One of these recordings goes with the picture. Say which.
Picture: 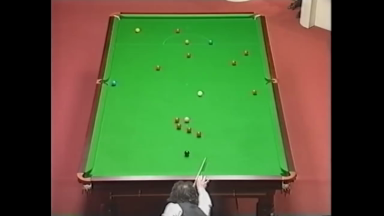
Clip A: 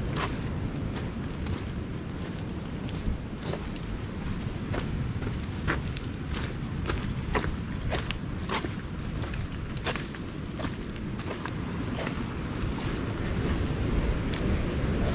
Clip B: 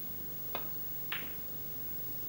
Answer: B